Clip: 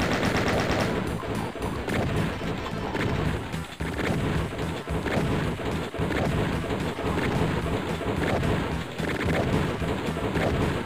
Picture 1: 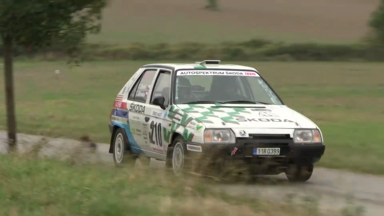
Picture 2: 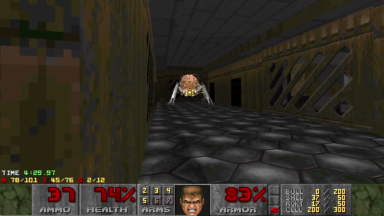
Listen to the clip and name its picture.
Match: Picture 2